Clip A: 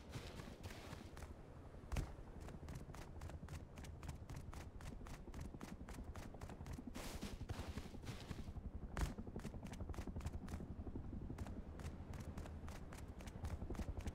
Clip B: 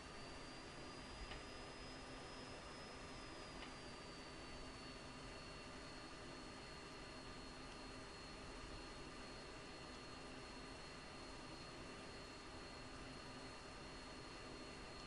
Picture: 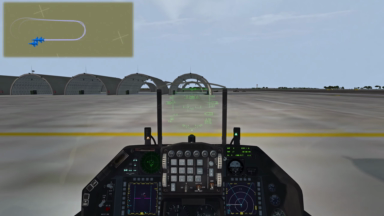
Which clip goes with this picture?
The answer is B